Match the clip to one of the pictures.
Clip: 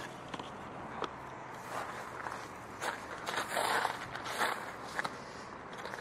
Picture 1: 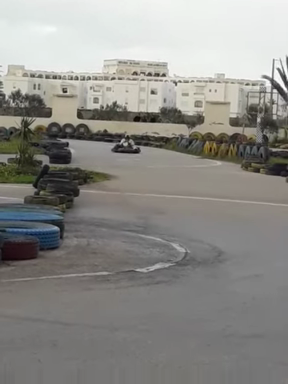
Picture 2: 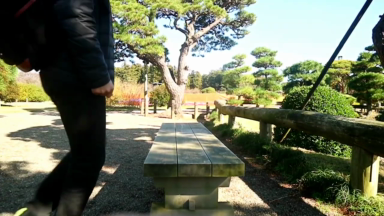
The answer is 2